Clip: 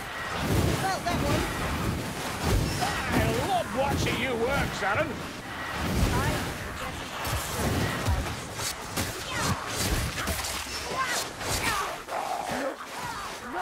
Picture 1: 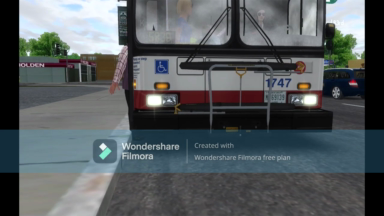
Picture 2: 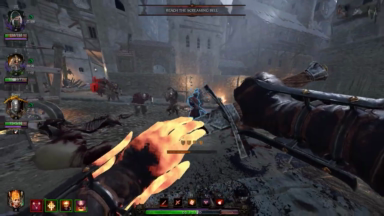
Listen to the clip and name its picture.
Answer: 2